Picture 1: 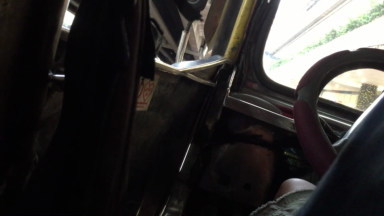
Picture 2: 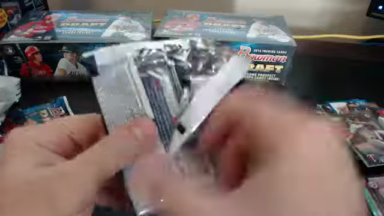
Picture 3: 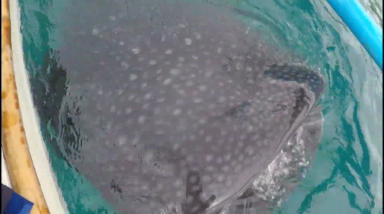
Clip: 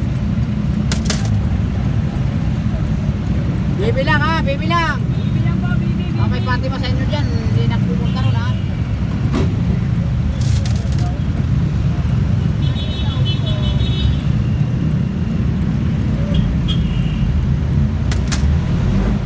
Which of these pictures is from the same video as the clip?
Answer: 1